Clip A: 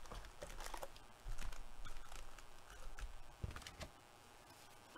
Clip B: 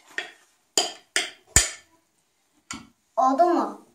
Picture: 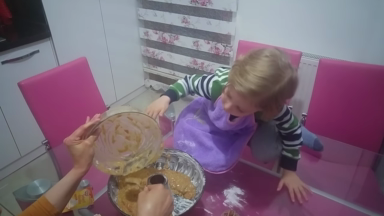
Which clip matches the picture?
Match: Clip B